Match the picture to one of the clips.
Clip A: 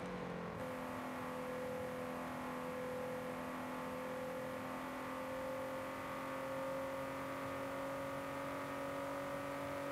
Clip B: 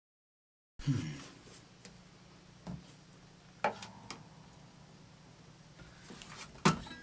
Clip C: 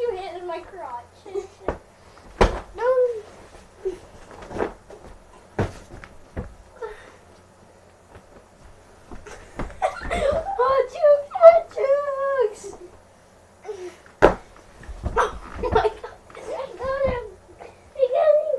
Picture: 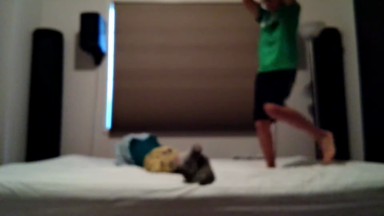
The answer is C